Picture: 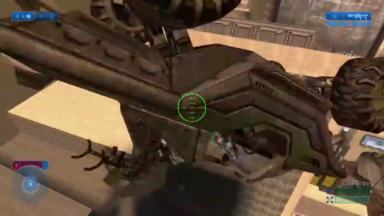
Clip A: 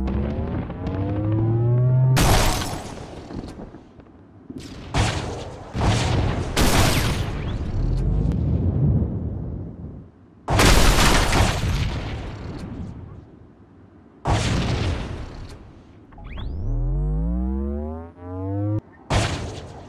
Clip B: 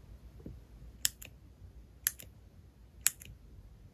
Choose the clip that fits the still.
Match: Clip A